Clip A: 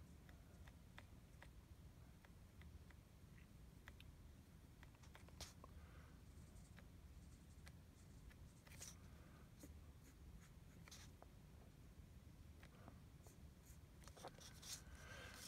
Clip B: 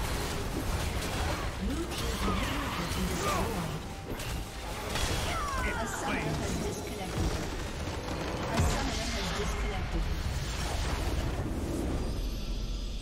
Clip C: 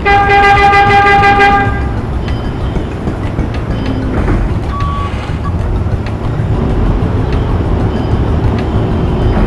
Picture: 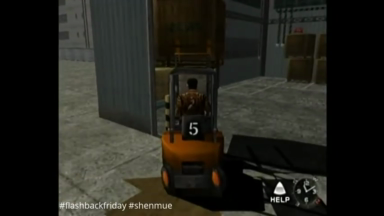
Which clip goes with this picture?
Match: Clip C